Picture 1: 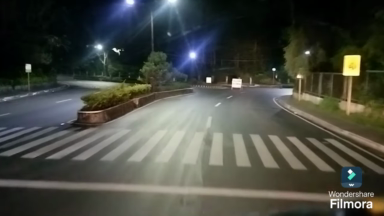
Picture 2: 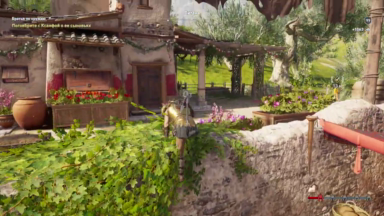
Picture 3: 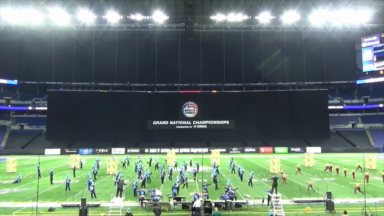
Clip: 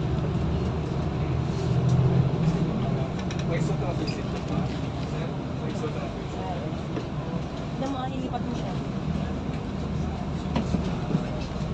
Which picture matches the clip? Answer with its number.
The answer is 1